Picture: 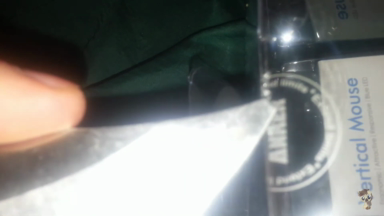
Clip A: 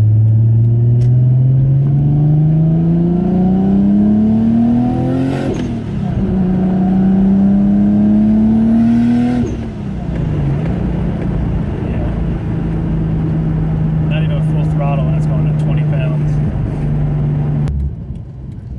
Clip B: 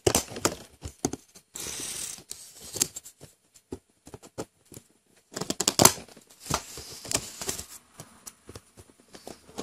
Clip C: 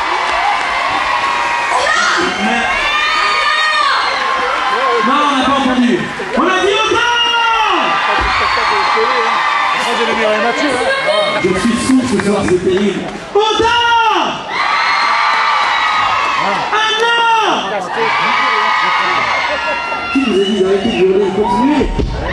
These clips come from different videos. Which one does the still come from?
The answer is B